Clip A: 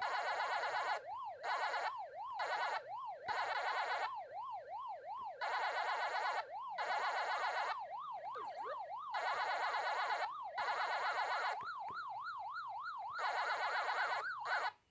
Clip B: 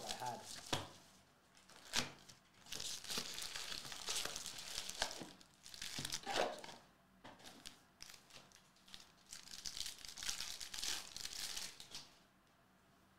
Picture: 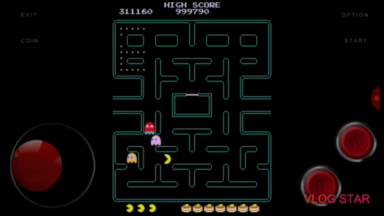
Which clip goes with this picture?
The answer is A